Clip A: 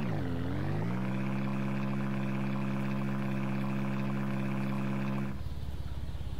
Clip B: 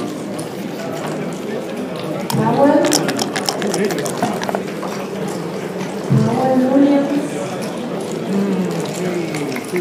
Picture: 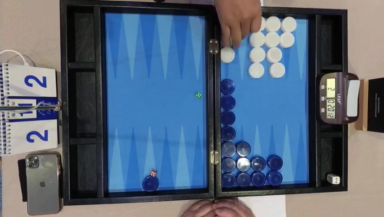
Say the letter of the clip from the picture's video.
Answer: B